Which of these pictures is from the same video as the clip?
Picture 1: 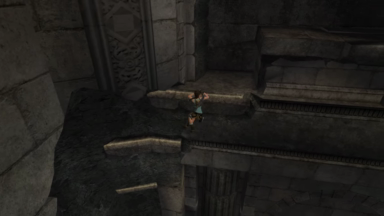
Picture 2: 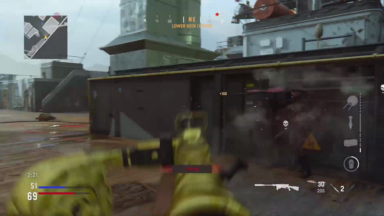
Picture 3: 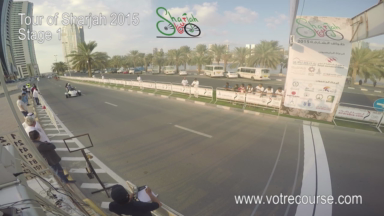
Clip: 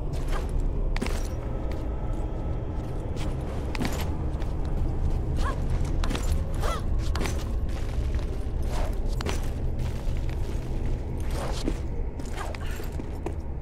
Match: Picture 1